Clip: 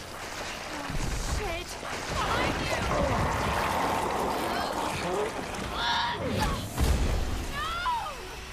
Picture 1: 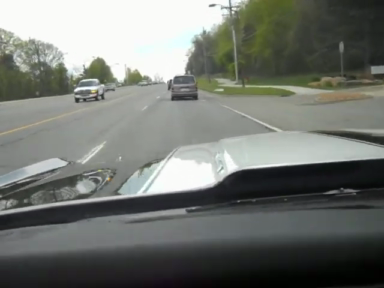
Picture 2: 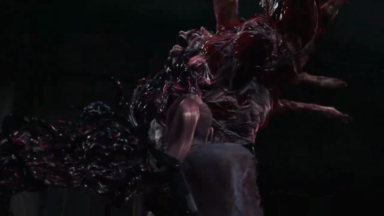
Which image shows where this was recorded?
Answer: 2